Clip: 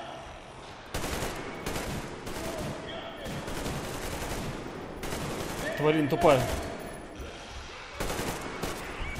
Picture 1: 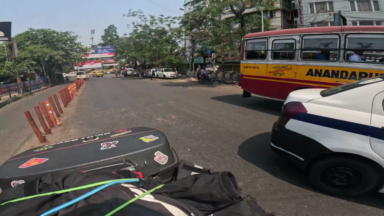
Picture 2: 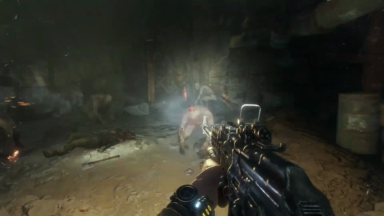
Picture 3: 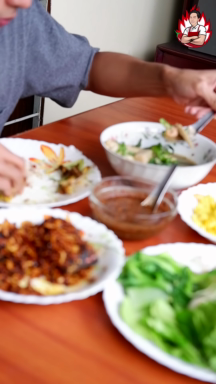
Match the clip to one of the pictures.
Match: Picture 2